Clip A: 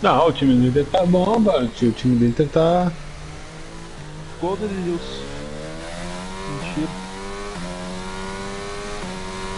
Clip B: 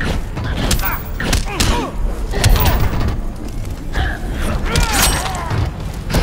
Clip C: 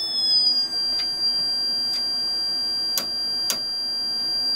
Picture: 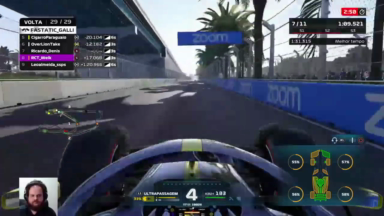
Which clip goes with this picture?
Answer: A